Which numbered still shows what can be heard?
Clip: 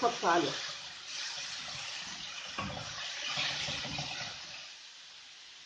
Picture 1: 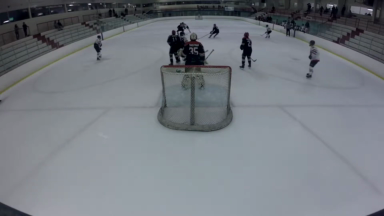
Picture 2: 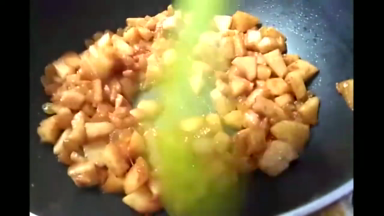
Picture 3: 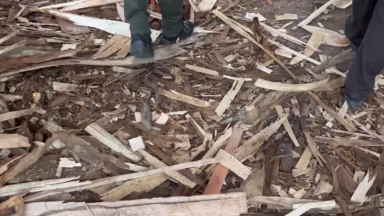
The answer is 2